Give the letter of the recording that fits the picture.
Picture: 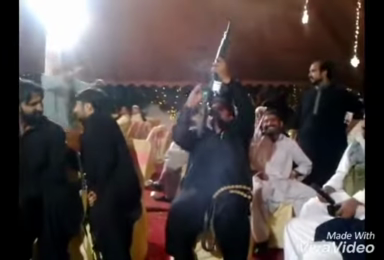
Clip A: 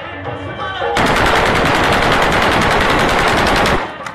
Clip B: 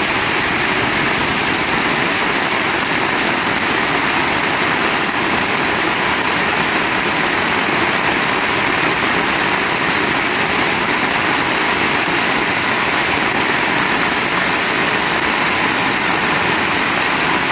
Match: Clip A